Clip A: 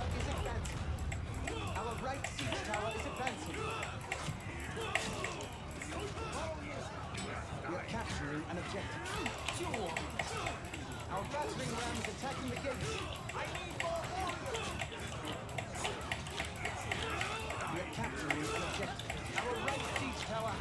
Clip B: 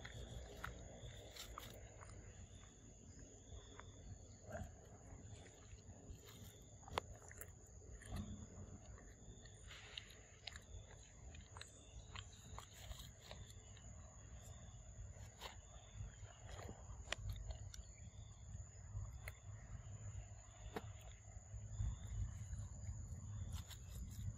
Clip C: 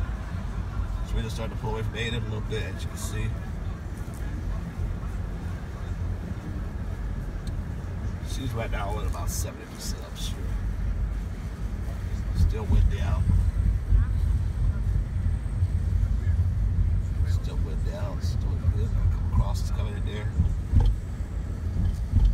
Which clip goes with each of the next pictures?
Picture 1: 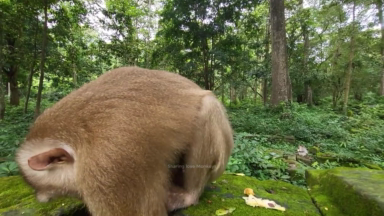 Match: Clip B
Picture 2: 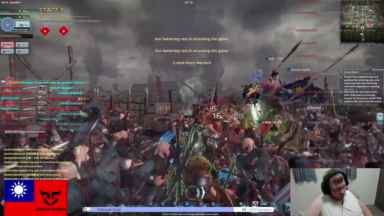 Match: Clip A